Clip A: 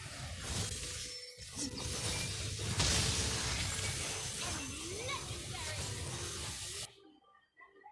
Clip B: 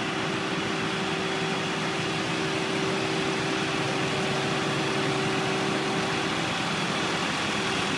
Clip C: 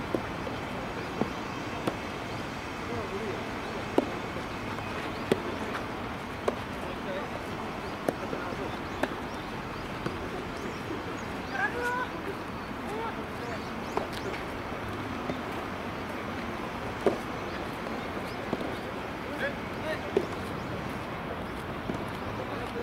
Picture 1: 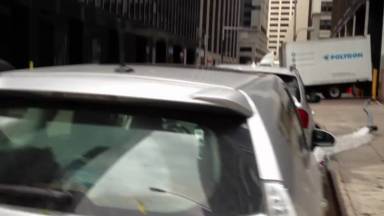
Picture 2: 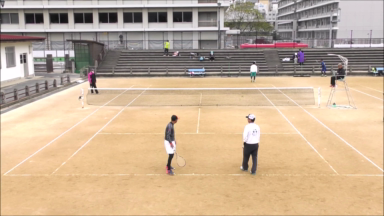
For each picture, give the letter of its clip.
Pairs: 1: B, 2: C